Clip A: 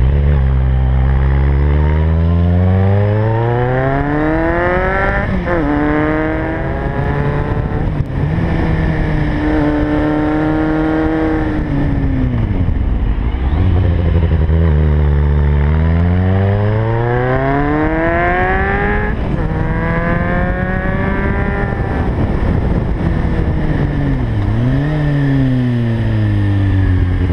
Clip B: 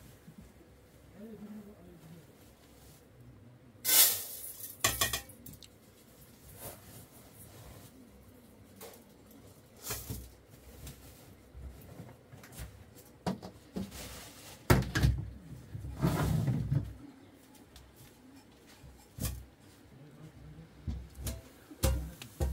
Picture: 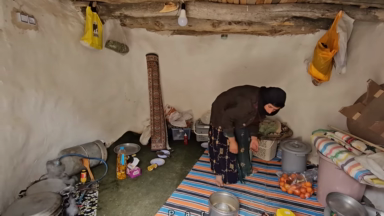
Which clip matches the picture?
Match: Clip B